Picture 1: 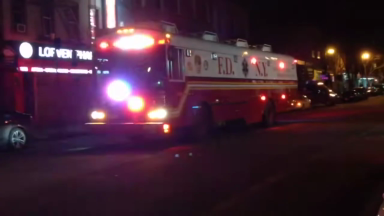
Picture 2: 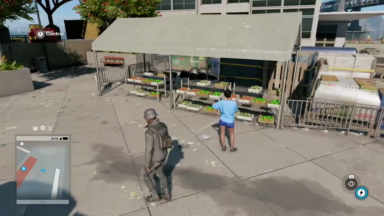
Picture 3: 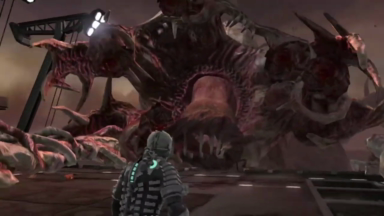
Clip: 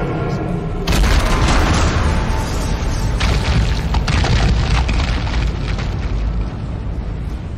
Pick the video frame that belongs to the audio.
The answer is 3